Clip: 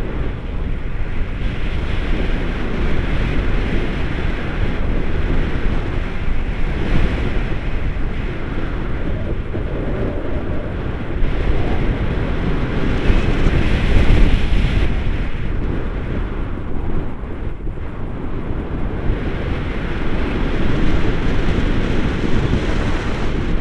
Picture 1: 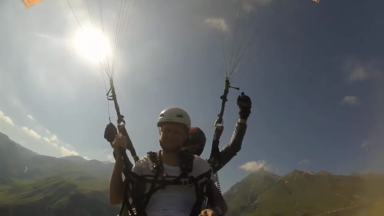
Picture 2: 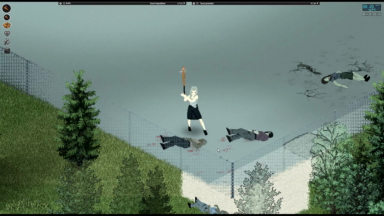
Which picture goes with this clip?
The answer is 1